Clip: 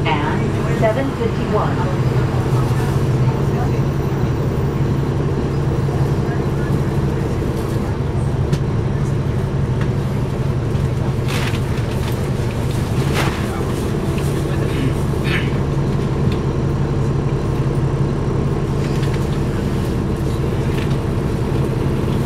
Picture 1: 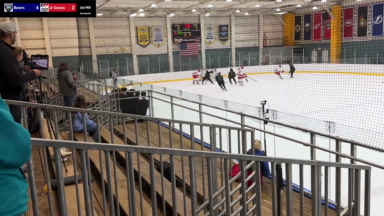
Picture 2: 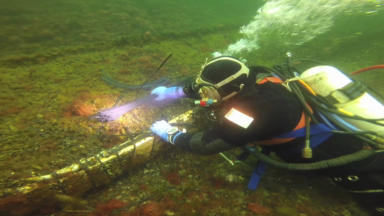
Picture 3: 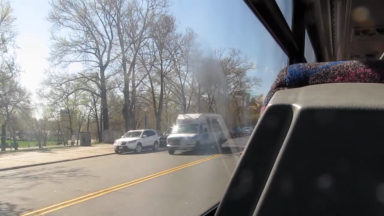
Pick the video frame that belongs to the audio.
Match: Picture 3